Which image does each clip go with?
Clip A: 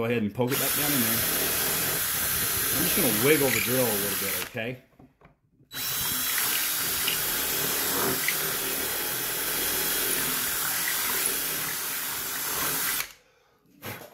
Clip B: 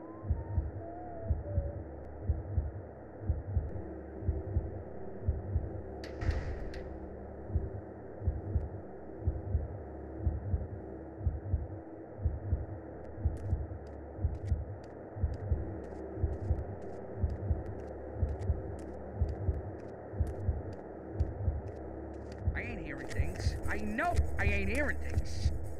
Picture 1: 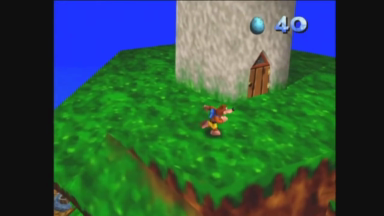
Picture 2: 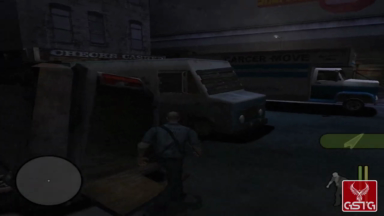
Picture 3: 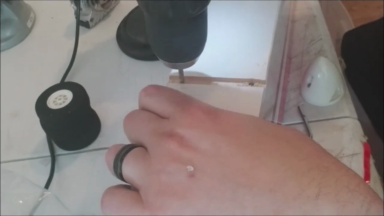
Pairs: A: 3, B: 2